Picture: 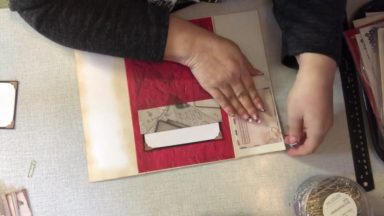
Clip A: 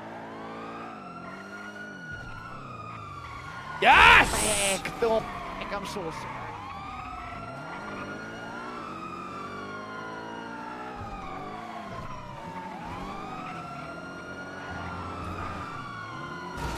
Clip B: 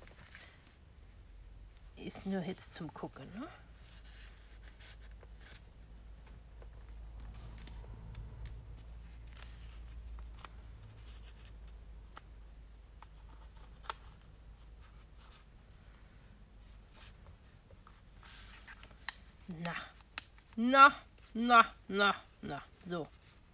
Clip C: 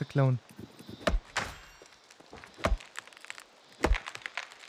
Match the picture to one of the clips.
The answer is B